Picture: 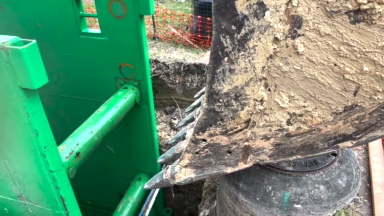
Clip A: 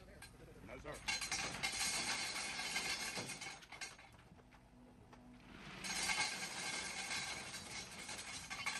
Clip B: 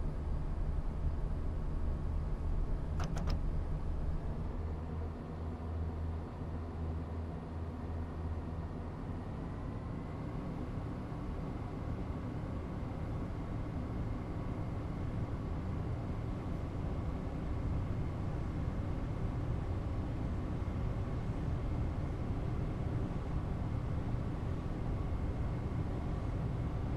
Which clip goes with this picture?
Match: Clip A